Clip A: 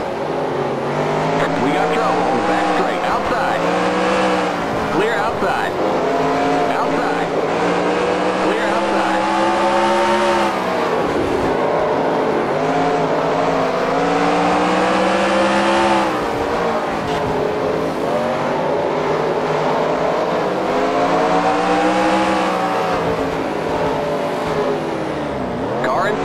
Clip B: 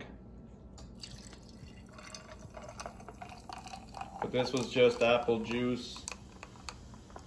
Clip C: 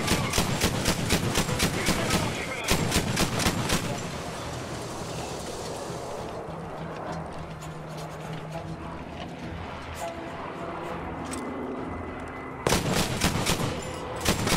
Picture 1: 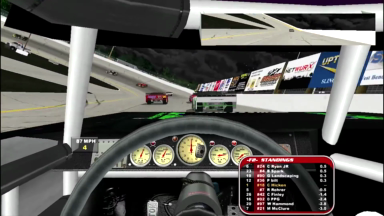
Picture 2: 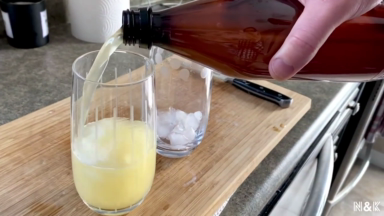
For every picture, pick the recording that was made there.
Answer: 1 A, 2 B